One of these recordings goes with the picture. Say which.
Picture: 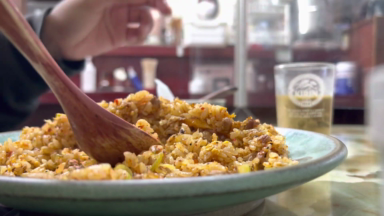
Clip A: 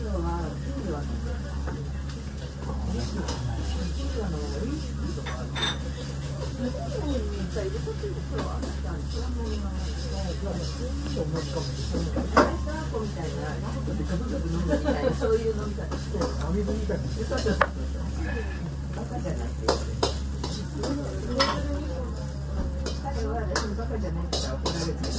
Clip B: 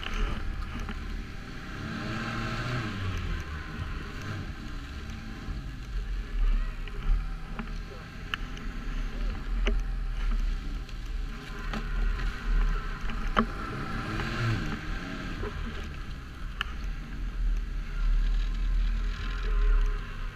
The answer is A